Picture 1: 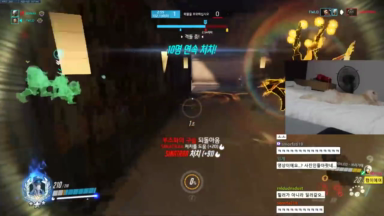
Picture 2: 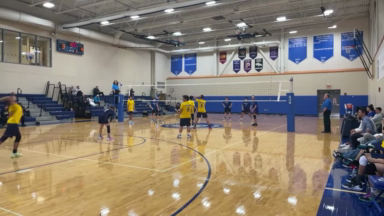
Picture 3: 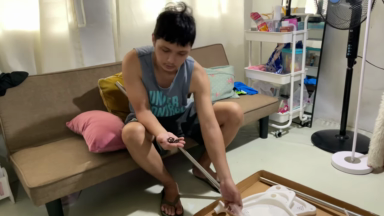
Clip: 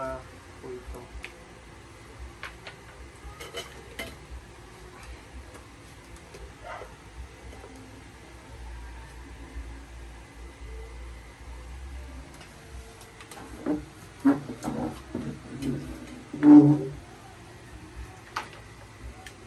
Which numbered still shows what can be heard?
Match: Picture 3